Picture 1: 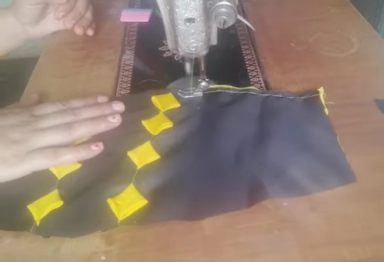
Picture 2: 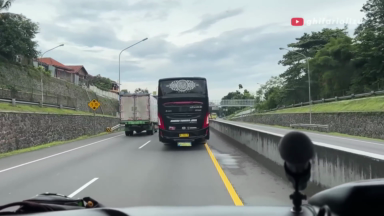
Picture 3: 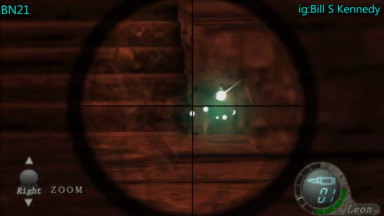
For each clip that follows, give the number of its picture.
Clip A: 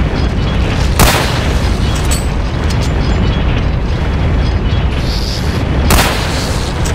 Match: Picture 3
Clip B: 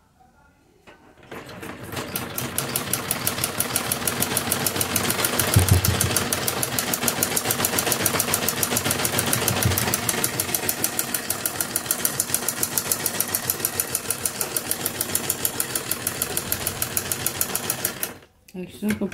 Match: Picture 1